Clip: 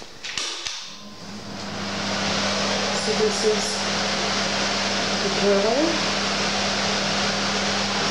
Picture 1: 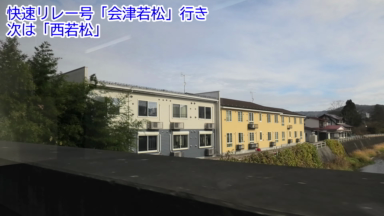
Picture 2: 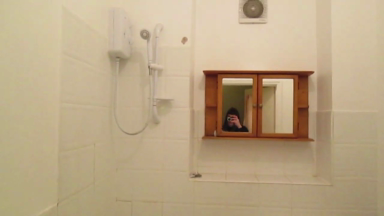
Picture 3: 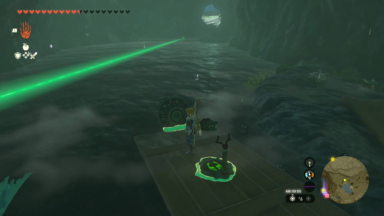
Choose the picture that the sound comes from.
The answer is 2